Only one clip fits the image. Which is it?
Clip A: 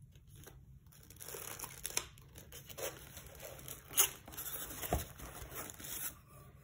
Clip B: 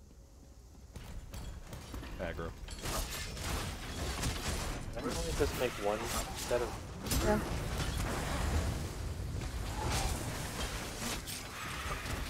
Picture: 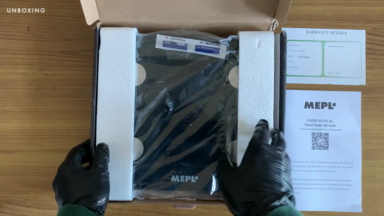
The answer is A